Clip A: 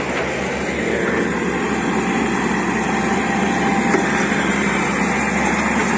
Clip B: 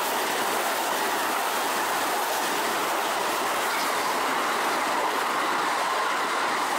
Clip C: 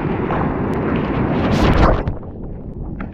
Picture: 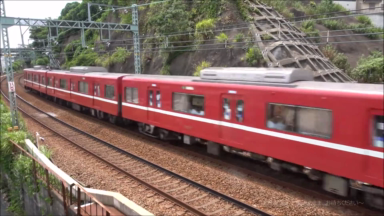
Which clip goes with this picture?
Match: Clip B